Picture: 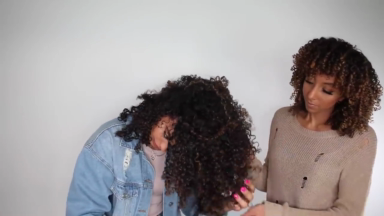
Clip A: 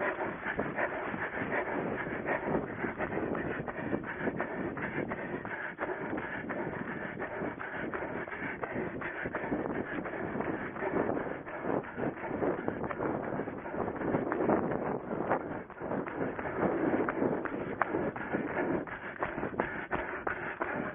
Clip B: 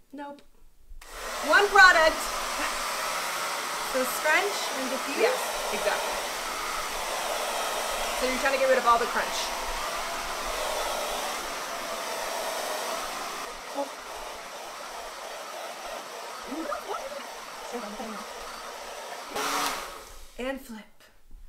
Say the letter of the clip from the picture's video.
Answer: B